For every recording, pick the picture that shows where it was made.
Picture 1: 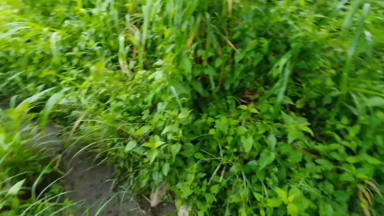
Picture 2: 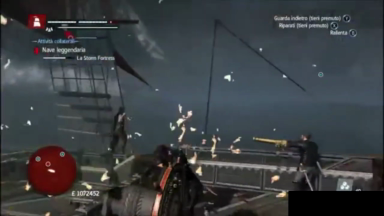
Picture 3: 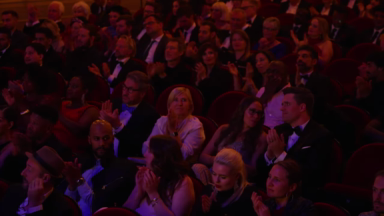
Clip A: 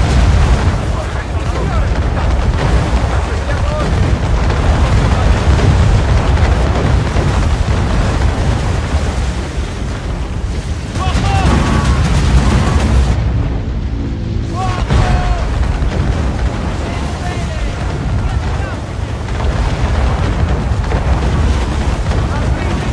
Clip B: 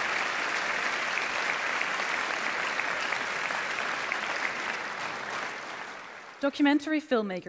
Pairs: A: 2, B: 3